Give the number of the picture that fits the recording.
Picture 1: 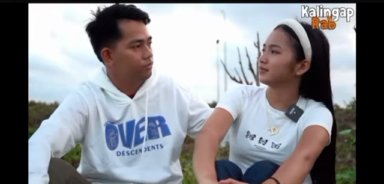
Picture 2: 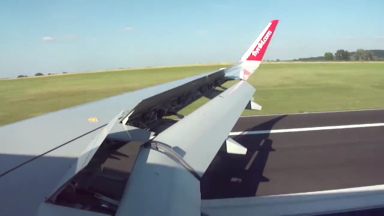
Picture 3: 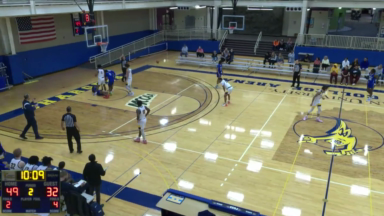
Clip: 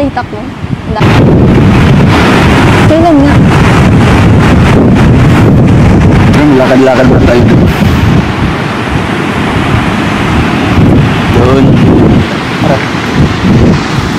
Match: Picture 1